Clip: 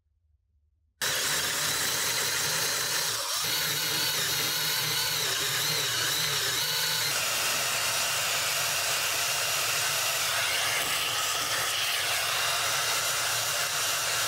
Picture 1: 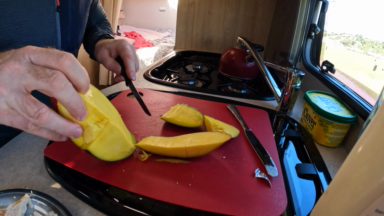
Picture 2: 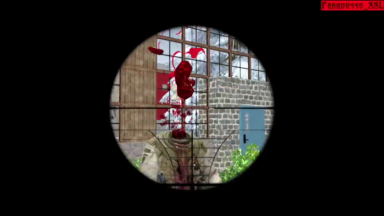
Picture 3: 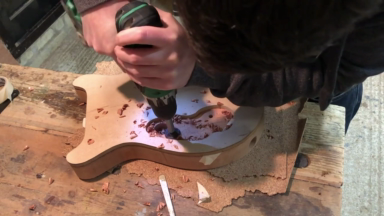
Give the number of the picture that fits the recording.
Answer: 3